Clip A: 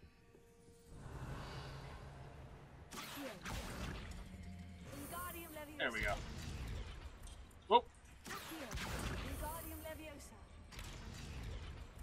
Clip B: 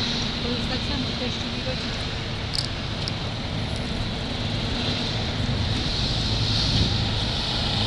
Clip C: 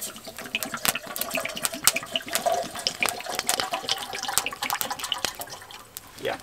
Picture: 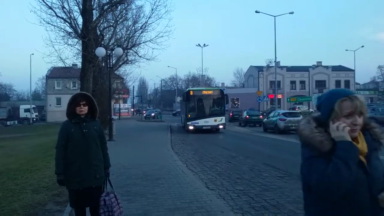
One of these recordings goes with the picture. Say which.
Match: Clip B